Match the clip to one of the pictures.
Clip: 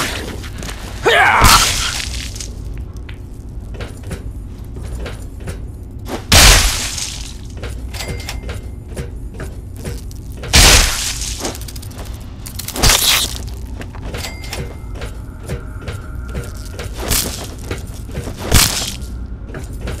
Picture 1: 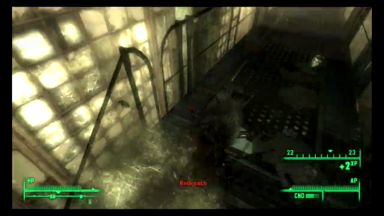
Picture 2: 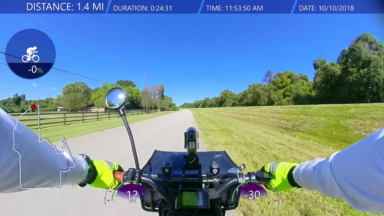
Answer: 1